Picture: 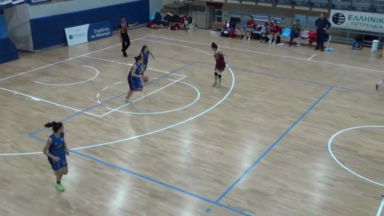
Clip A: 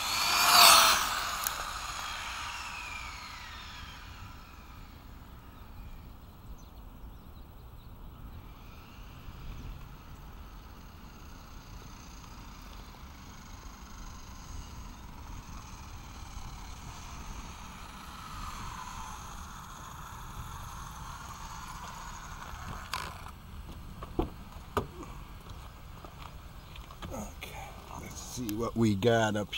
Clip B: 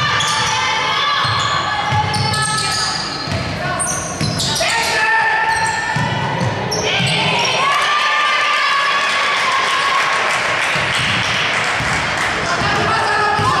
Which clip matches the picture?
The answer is B